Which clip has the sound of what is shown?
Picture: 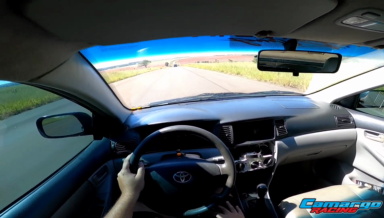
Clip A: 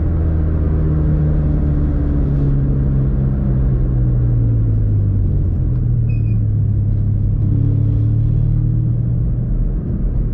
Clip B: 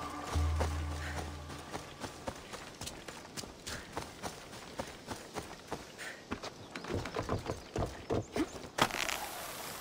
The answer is A